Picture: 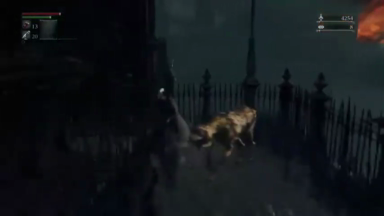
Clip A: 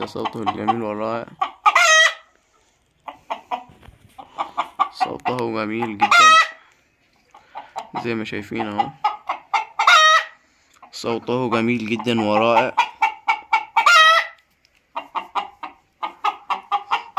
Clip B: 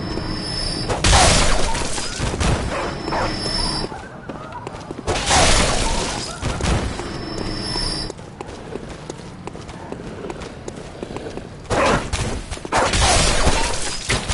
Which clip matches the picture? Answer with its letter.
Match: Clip B